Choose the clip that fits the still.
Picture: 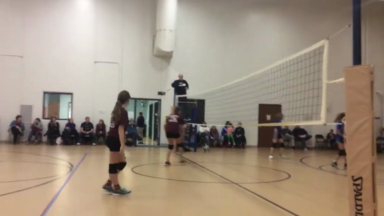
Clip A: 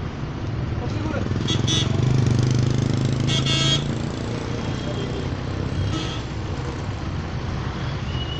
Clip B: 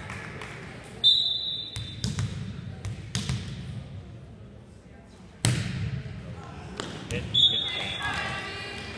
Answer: B